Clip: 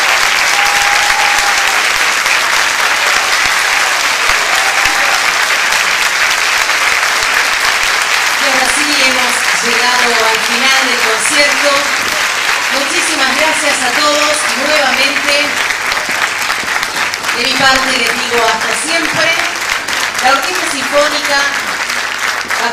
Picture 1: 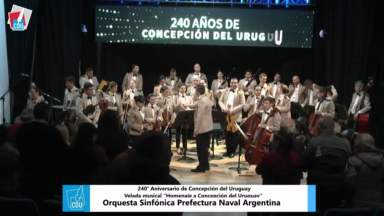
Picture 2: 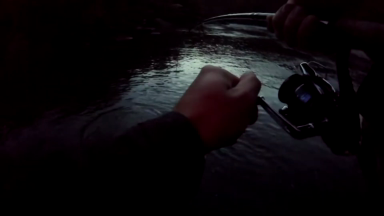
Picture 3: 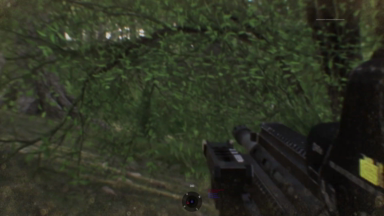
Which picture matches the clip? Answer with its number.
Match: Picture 1